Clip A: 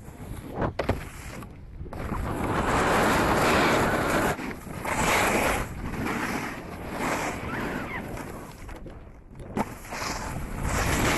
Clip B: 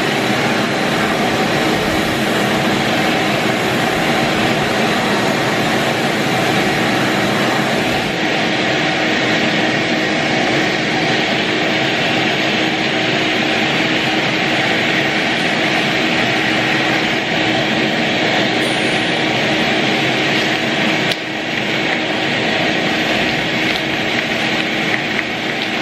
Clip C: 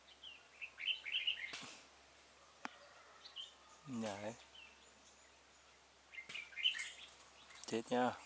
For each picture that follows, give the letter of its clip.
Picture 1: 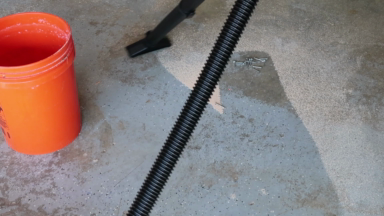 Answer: B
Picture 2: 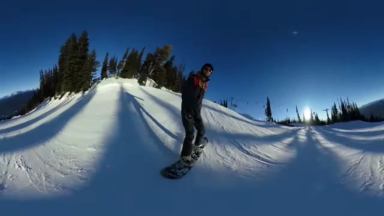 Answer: A